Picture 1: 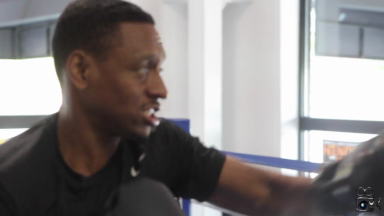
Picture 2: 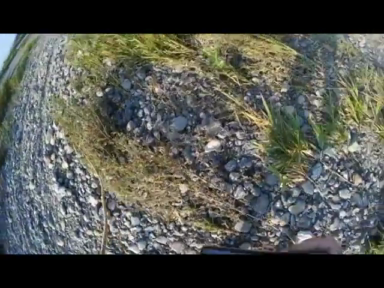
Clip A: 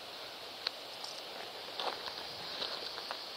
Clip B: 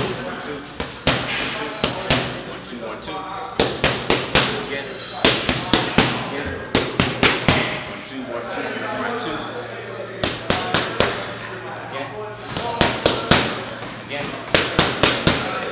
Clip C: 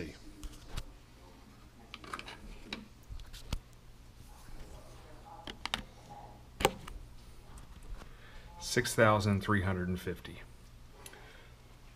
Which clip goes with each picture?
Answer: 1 B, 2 A